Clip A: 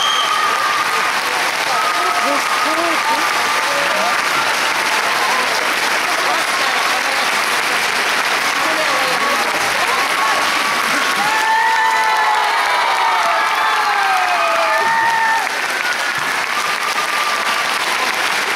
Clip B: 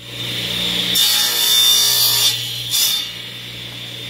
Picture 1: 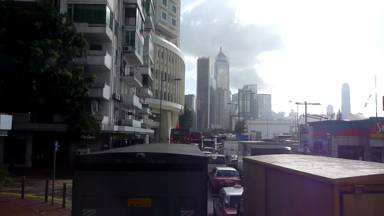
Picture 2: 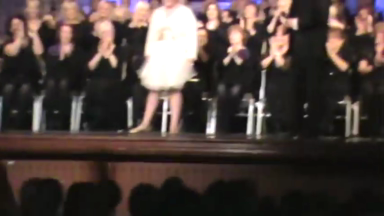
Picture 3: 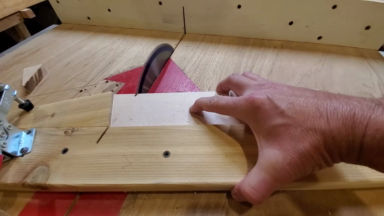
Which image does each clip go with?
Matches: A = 2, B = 3